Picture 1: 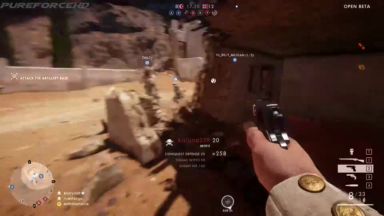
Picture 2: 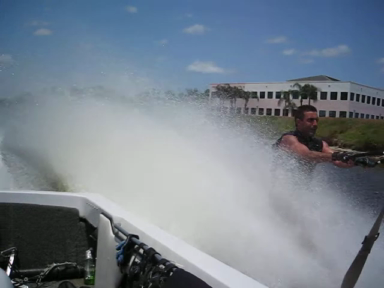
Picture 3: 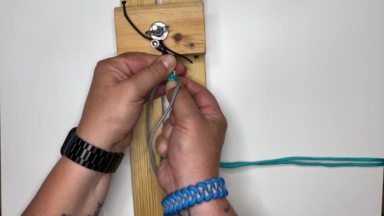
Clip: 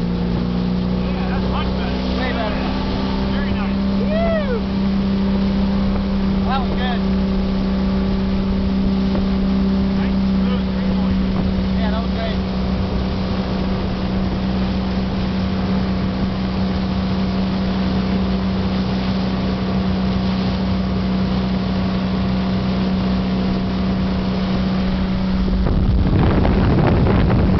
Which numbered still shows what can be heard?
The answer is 2